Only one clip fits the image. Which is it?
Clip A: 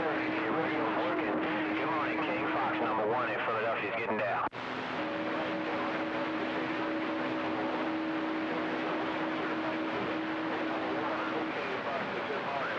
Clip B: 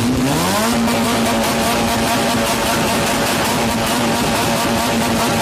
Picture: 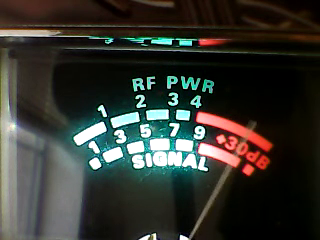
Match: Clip A